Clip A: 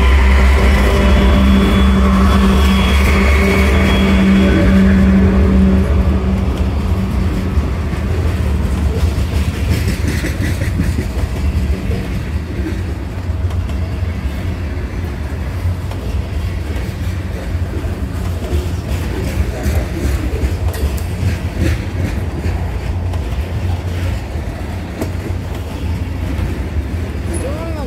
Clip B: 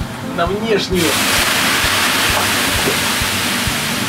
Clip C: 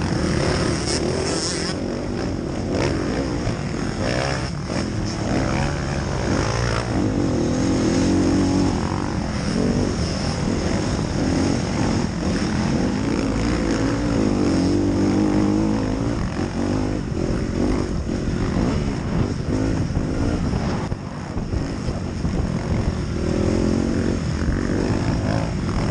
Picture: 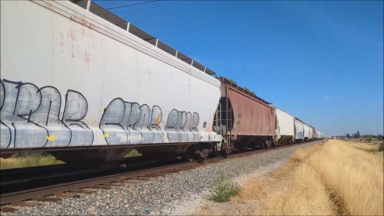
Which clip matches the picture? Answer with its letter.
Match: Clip A